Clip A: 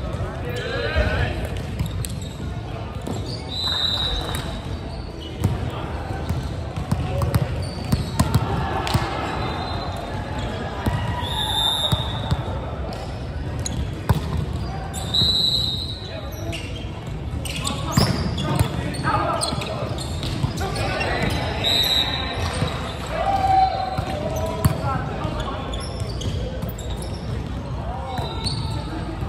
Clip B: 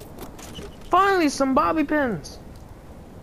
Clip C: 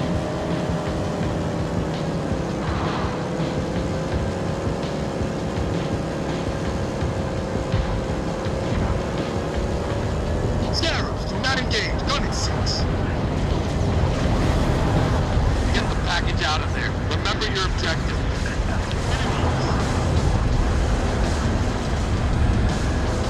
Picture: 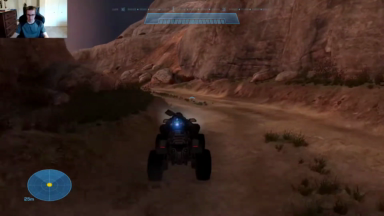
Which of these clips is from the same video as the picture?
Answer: C